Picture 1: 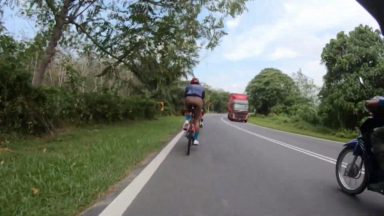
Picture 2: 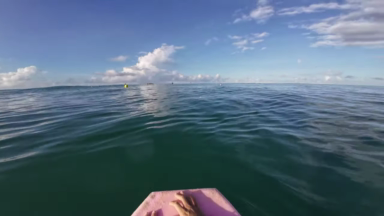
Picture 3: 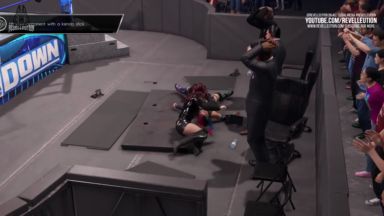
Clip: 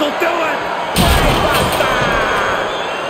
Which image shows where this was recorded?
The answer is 3